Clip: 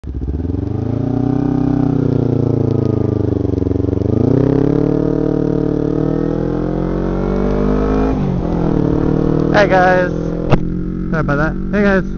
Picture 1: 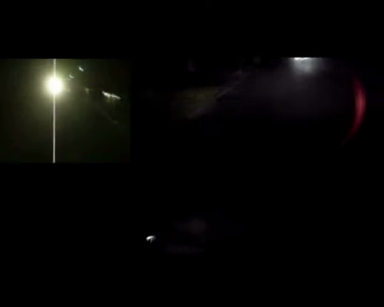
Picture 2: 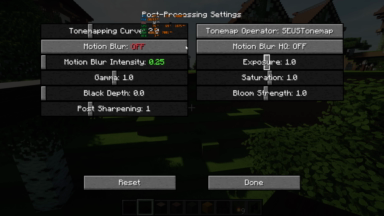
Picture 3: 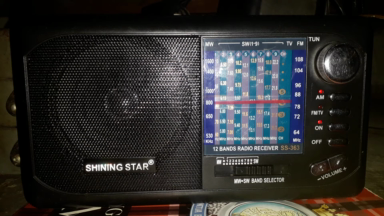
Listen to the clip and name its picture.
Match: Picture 1